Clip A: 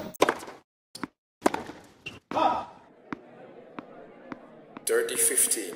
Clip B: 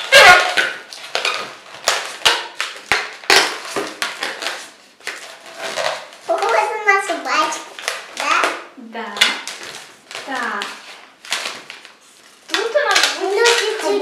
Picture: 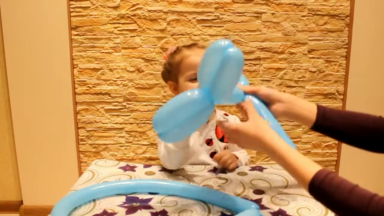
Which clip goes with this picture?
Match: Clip B